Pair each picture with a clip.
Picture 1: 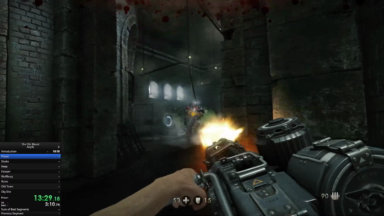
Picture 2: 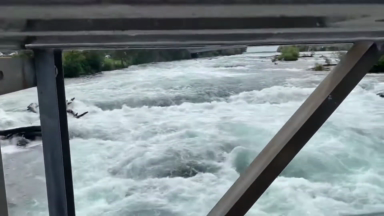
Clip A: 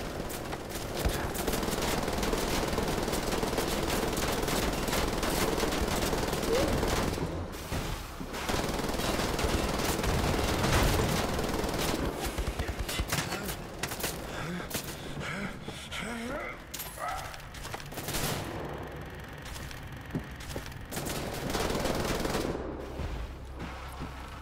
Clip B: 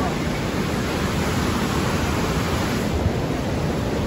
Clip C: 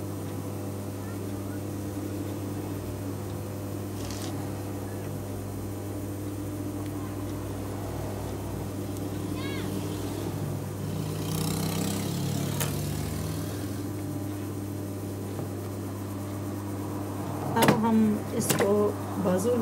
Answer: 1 A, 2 B